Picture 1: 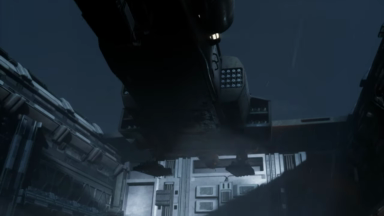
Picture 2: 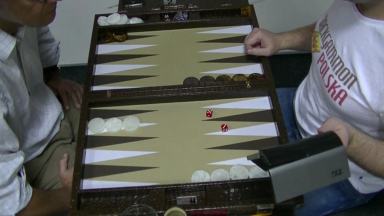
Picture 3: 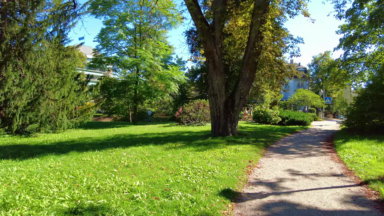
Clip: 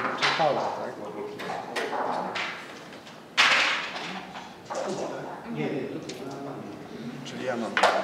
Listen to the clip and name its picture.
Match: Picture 2